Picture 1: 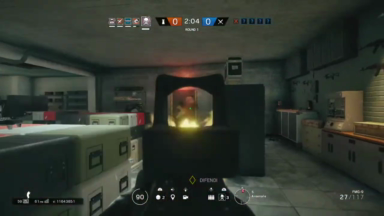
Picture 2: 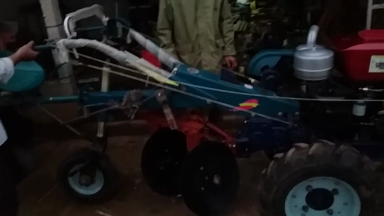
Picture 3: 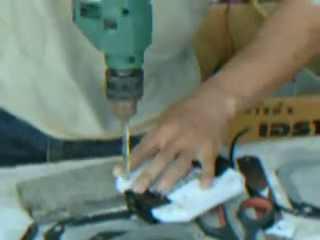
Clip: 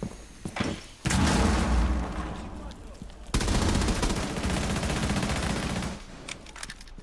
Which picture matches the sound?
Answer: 1